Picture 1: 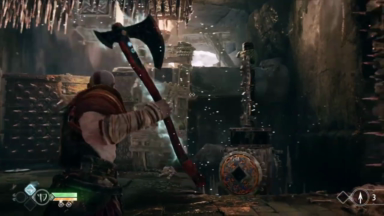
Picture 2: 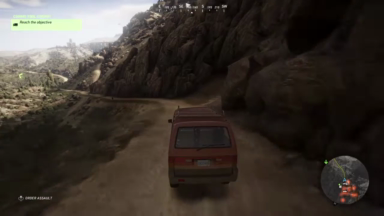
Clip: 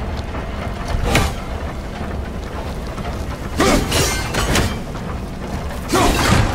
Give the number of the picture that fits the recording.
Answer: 1